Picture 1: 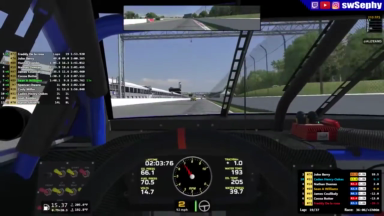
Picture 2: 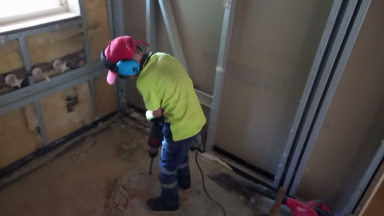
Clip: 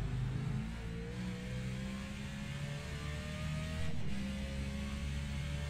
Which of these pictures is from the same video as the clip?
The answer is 1